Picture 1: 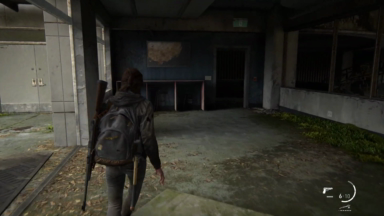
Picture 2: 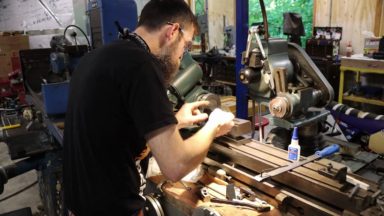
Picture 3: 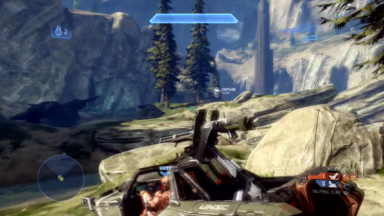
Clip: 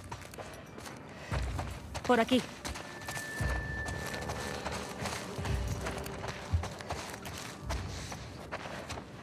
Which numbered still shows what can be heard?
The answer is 1